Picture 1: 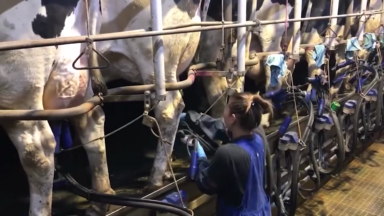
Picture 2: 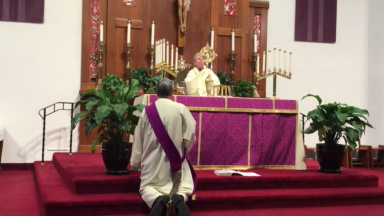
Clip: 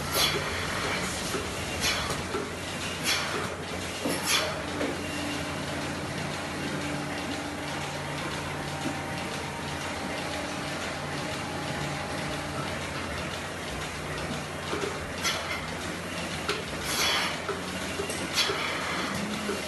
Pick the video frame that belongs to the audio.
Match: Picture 1